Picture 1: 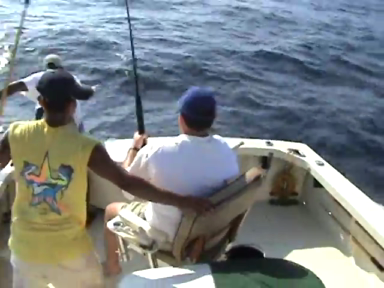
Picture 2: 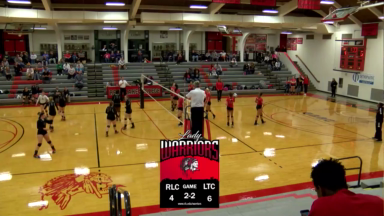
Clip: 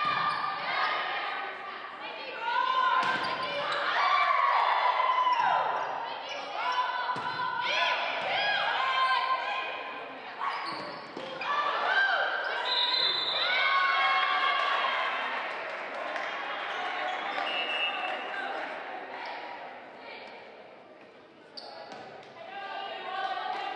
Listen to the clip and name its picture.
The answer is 2